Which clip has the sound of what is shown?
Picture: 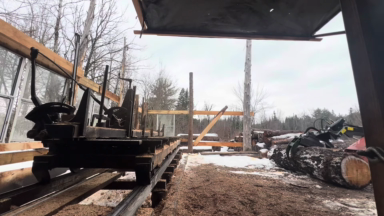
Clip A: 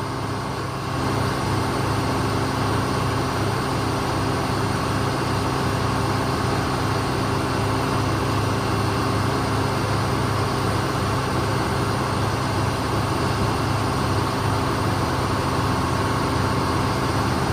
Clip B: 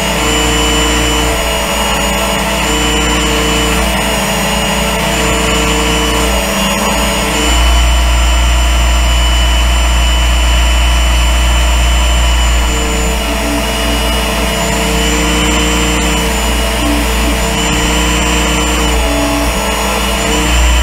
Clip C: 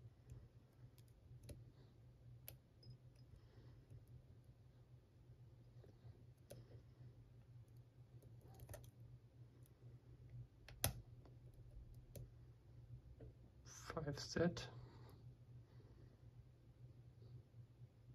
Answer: A